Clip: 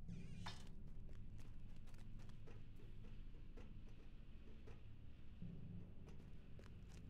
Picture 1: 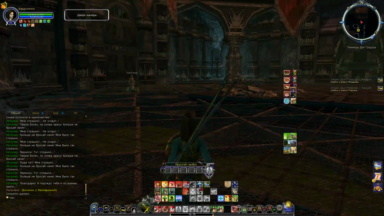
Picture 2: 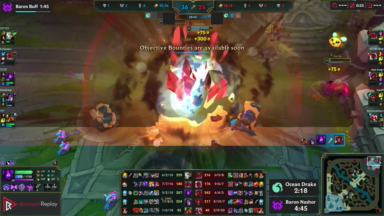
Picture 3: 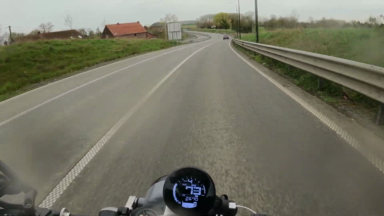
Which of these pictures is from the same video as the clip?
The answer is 1